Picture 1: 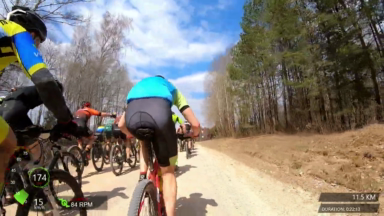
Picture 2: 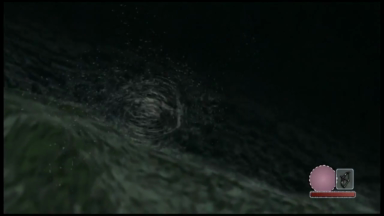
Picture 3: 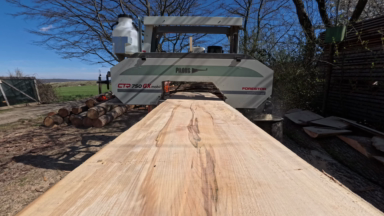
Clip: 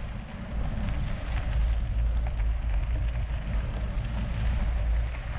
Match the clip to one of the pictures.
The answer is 1